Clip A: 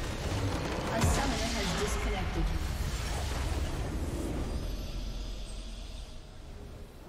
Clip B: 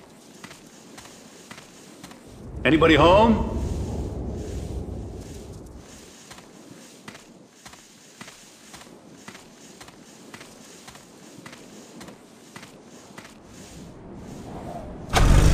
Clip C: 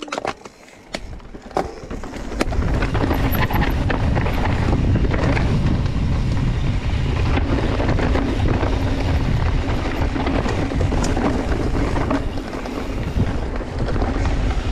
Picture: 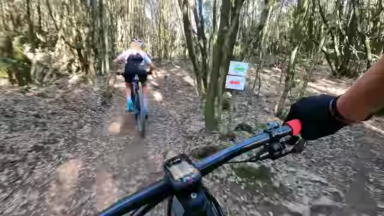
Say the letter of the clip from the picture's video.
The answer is C